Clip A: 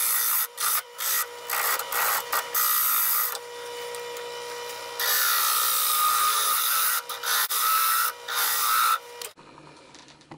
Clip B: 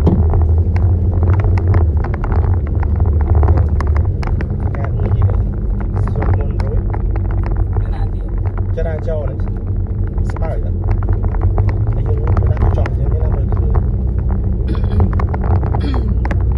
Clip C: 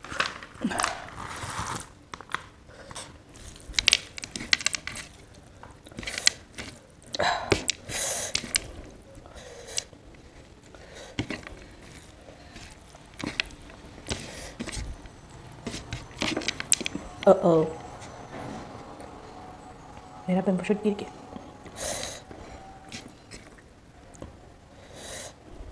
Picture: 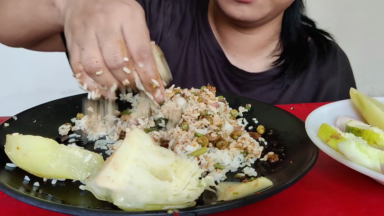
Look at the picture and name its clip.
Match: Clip C